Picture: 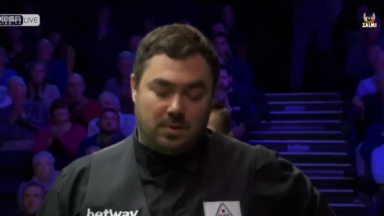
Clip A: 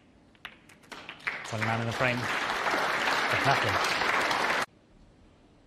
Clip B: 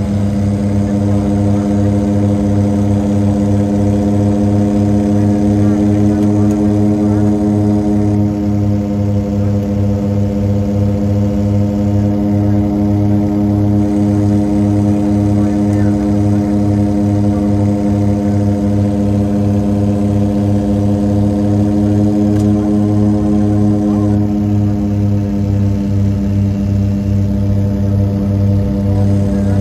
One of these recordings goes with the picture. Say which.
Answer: A